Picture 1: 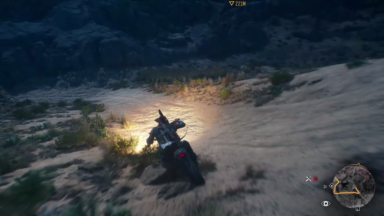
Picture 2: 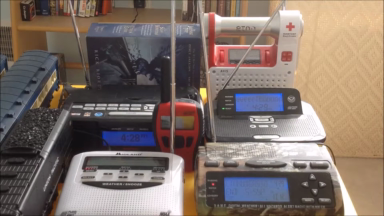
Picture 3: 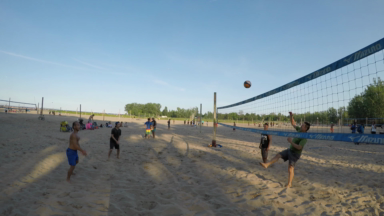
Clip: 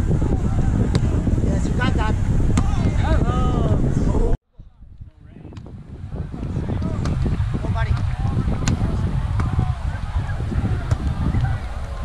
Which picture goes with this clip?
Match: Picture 3